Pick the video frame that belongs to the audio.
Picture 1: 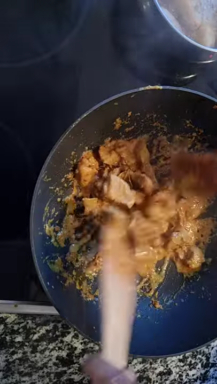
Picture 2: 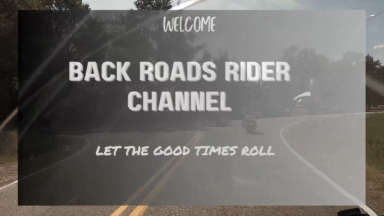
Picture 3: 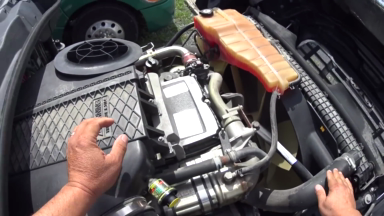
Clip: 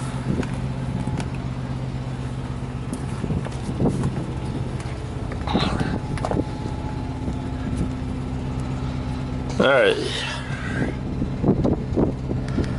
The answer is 3